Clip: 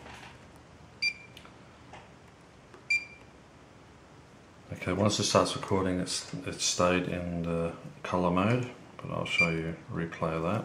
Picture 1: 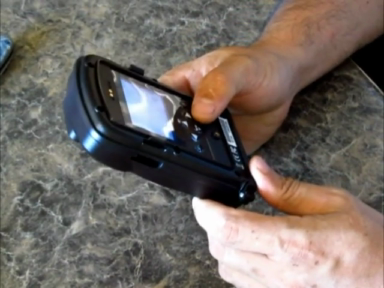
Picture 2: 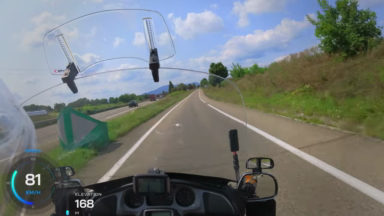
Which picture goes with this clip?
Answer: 1